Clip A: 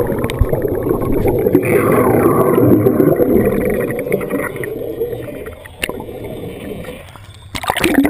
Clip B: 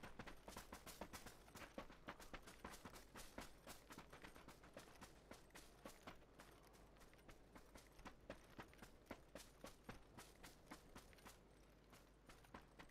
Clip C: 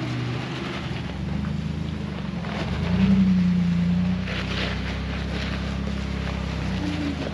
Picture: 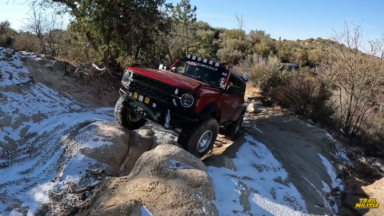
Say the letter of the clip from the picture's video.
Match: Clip C